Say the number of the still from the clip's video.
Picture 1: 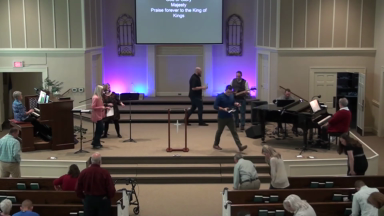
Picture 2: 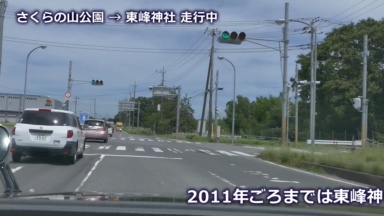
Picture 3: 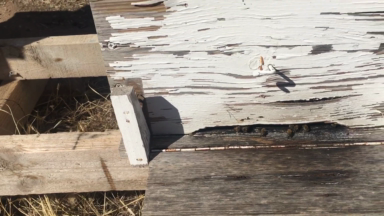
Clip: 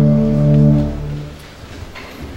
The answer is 1